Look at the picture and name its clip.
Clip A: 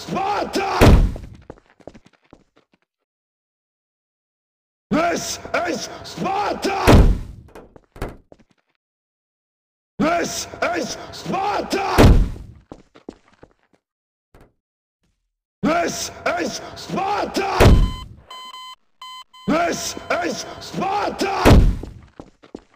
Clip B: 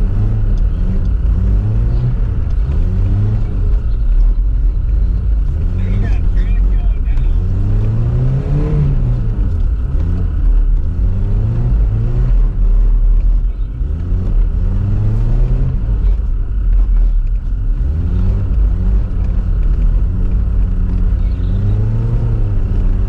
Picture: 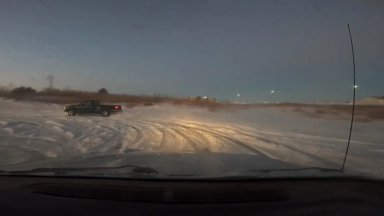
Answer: B